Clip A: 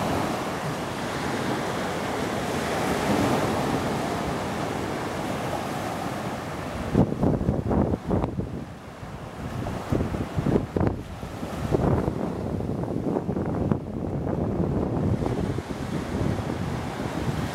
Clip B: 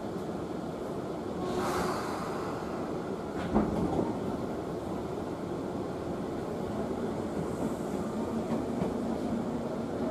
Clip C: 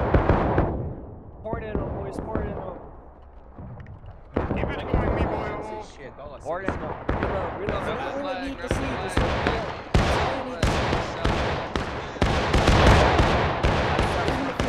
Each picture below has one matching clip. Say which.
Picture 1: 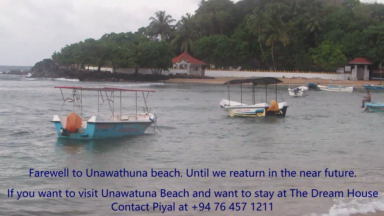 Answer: A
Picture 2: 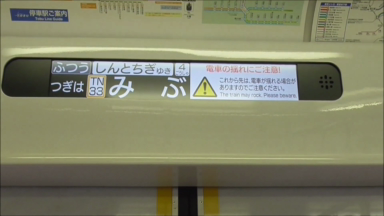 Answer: B